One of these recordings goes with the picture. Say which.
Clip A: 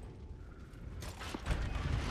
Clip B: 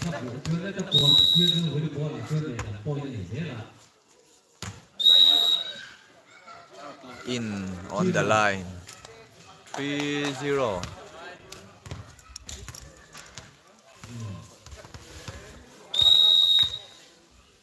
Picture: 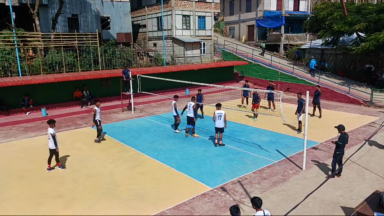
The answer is B